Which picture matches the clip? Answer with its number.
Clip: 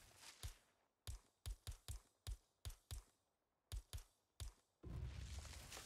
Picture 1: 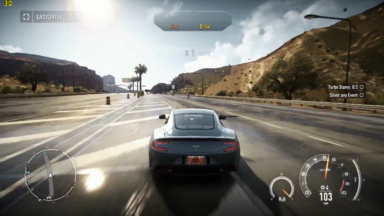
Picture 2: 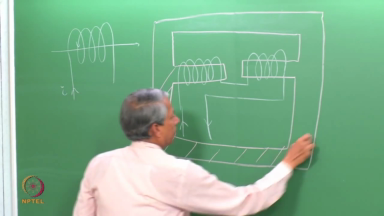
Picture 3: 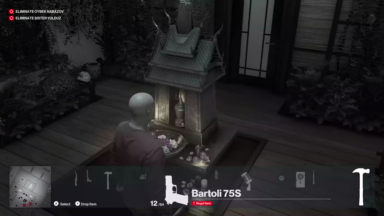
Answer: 3